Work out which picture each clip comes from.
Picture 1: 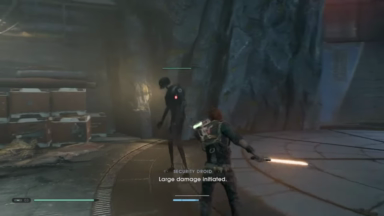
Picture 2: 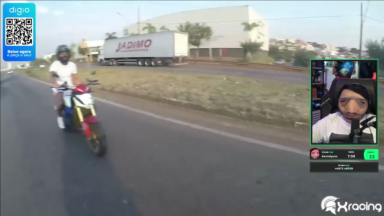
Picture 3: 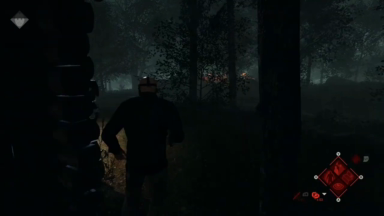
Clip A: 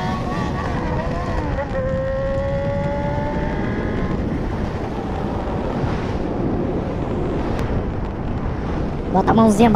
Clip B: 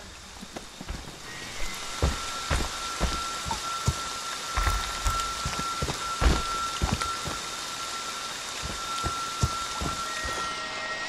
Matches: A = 2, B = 3